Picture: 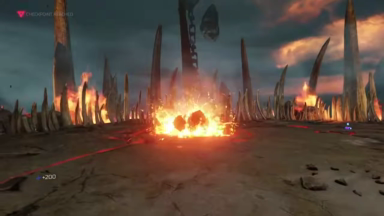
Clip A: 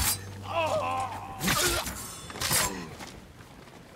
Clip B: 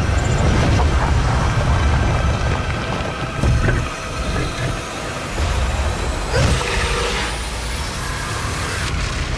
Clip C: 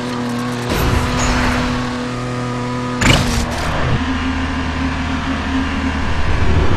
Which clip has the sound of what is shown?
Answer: B